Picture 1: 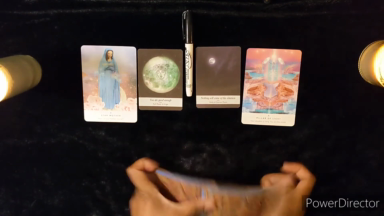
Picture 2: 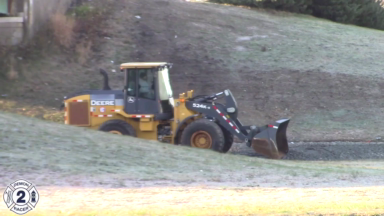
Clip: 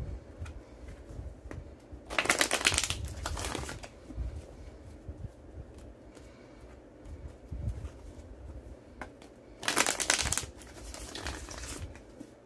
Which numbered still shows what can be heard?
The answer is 1